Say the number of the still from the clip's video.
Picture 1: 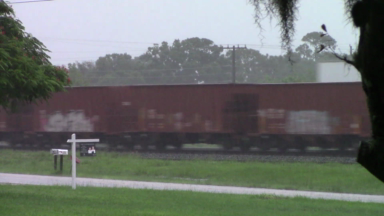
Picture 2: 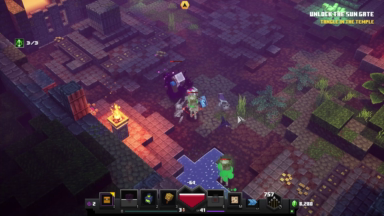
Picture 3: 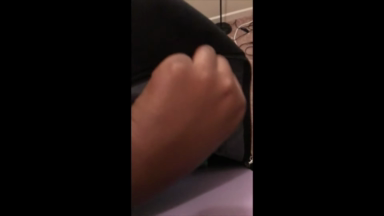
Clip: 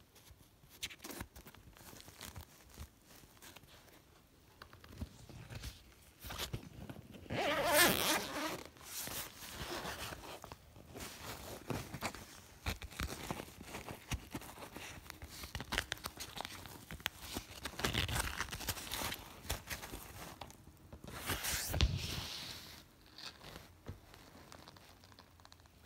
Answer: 3